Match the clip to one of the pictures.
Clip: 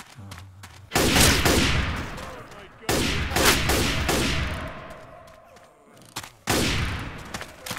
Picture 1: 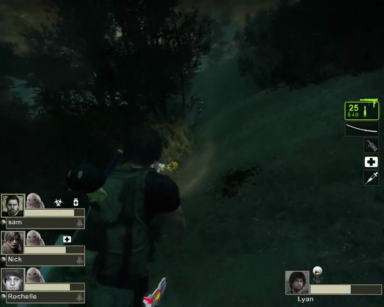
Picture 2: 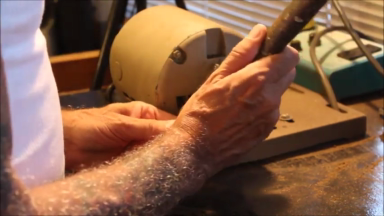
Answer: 1